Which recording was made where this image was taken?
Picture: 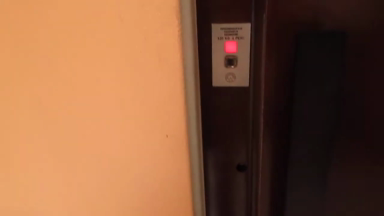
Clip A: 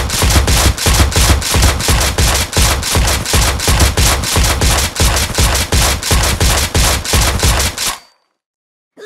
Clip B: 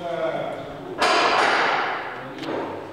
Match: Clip B